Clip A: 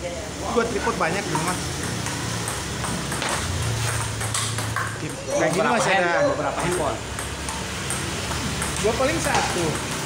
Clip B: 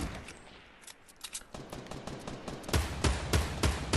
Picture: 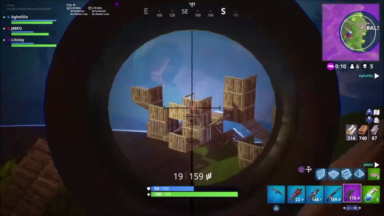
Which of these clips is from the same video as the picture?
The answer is B